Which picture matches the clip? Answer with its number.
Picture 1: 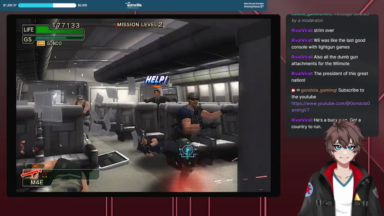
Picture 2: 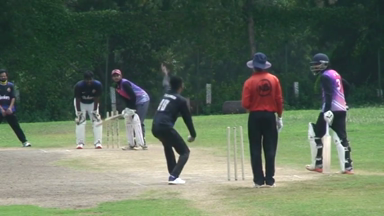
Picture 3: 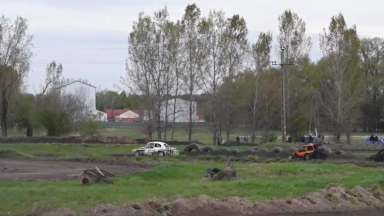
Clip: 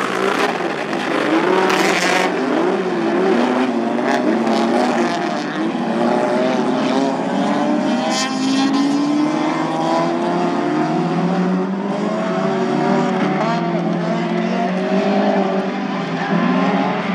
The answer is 3